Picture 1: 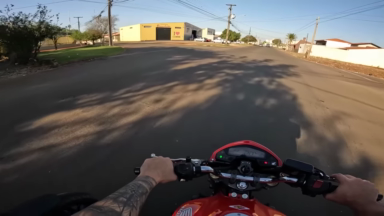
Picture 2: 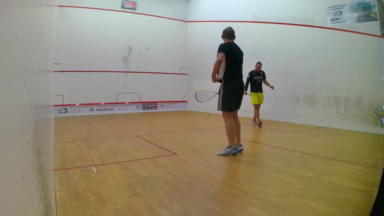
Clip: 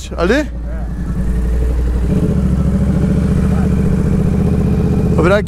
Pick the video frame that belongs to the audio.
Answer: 1